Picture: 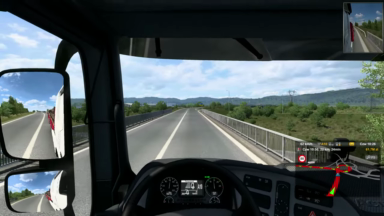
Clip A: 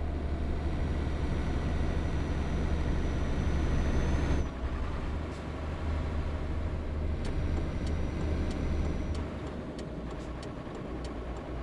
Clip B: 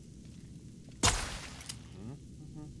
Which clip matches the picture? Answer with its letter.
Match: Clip A